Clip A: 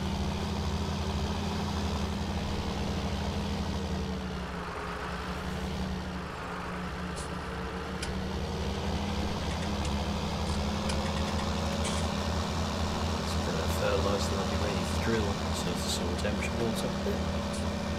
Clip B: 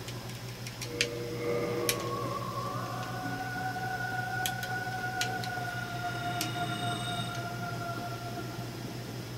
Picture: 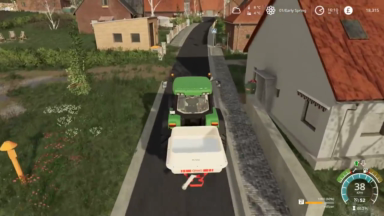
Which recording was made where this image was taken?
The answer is A